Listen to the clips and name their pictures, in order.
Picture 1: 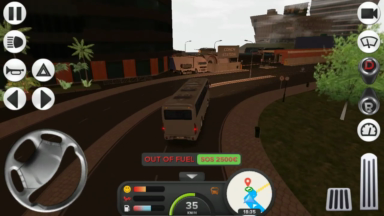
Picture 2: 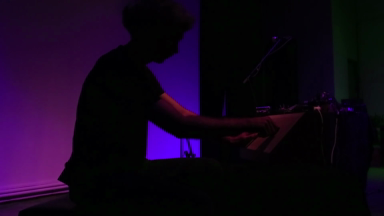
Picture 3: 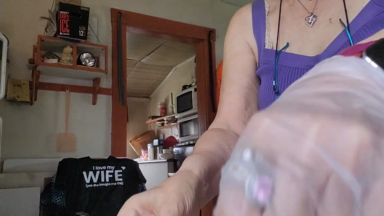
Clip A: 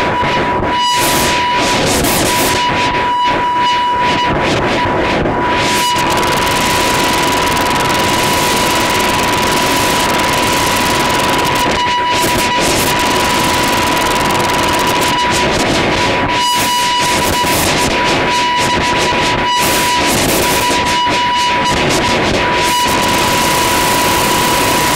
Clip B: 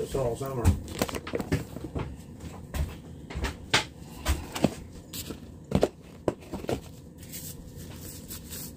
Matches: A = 2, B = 3